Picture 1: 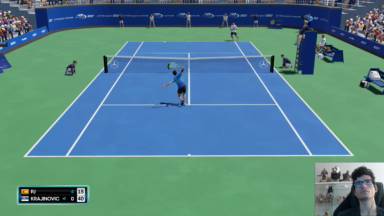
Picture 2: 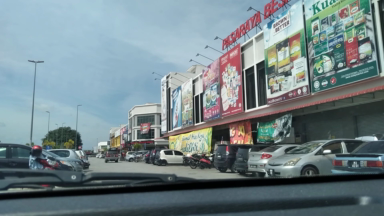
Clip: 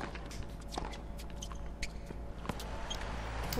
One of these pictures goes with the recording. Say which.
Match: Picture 1